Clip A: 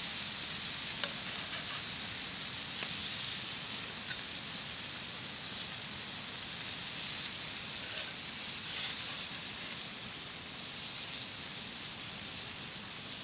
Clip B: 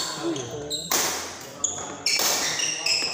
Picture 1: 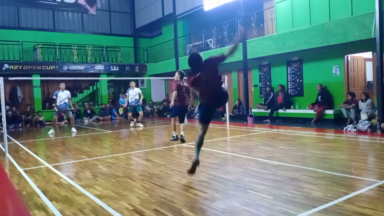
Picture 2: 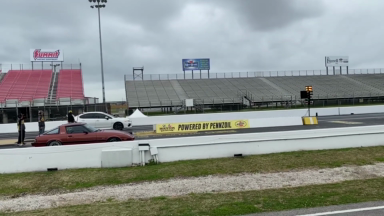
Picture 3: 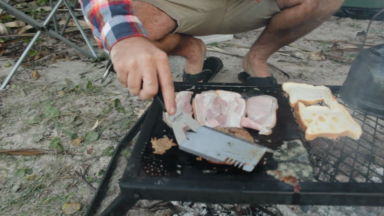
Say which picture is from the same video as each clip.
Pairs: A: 3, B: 1